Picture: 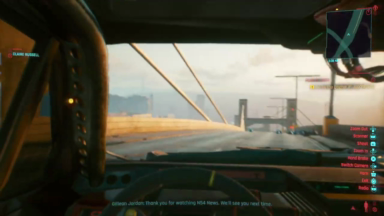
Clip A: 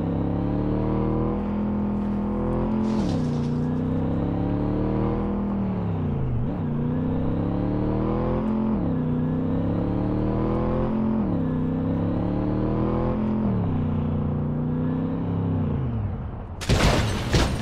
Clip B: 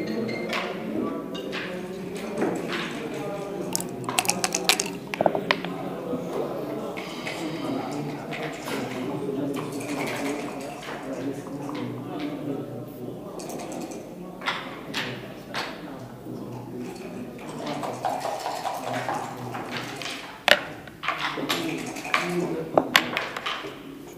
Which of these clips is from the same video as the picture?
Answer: A